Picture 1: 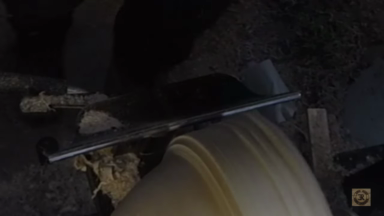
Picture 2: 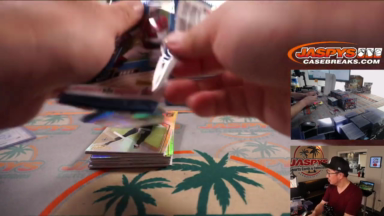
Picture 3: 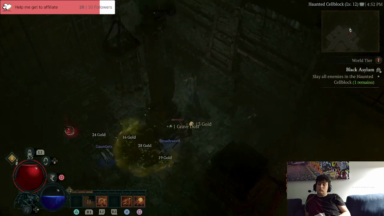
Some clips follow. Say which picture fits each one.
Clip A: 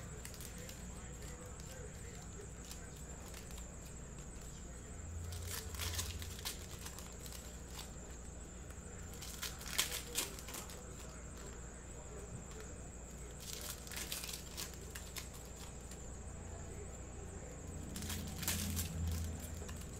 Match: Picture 2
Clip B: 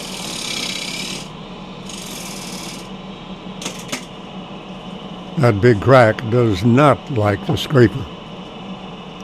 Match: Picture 1